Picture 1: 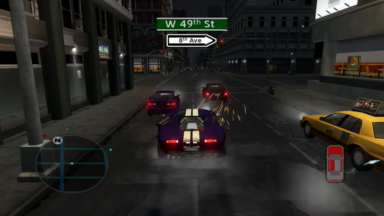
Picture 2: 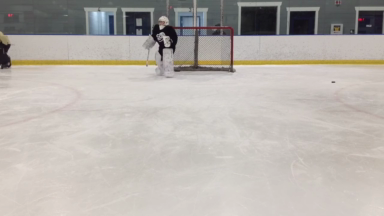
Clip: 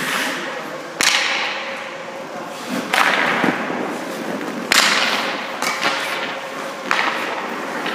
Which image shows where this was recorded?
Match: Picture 2